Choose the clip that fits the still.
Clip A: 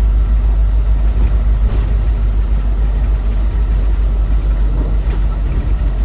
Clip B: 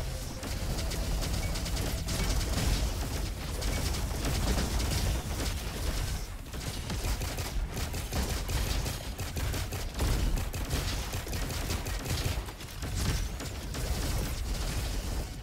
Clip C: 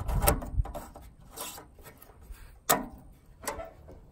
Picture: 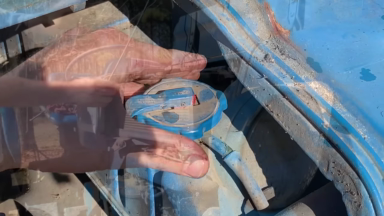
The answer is C